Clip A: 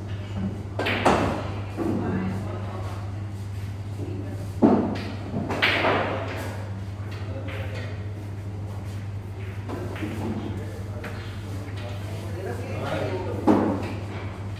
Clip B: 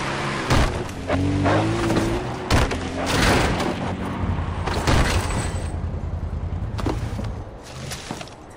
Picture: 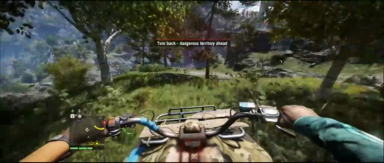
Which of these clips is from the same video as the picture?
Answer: B